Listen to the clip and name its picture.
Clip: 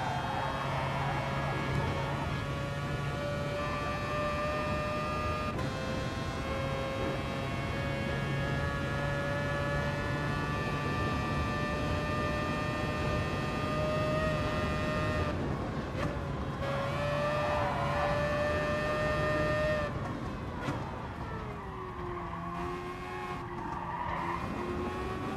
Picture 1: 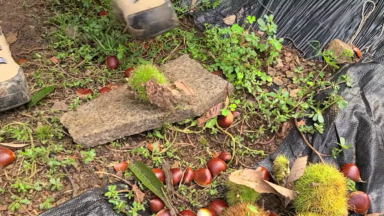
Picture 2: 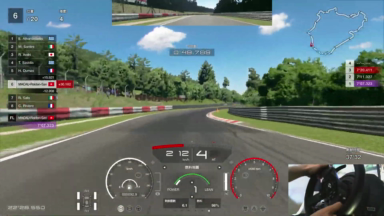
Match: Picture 2